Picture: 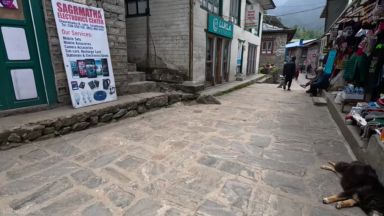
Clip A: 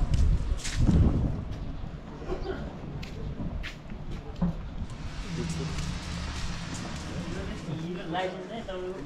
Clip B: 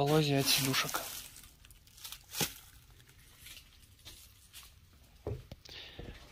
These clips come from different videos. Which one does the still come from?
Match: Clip A